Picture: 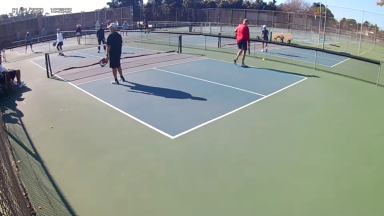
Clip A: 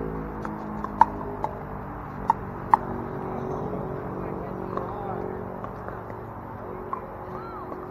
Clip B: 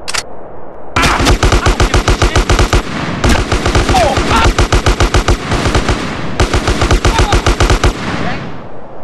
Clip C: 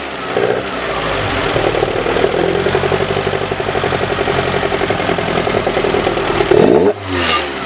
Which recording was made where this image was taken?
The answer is A